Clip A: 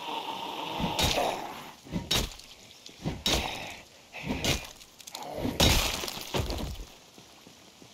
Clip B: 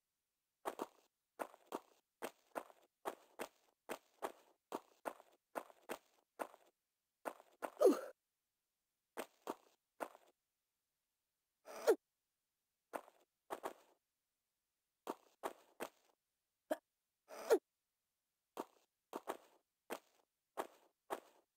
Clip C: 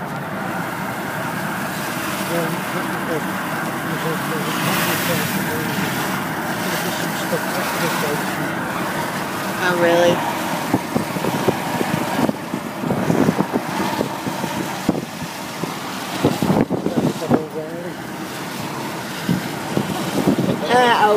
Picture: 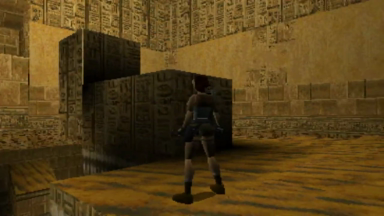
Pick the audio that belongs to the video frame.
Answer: B